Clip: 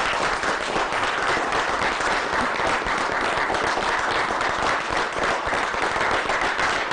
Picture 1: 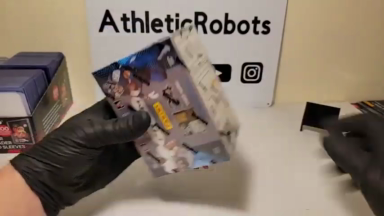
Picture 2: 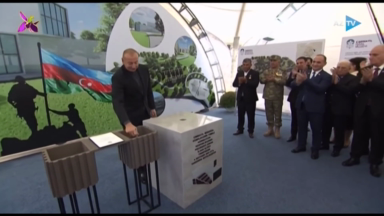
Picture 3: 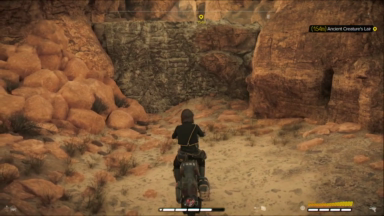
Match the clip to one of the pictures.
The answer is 2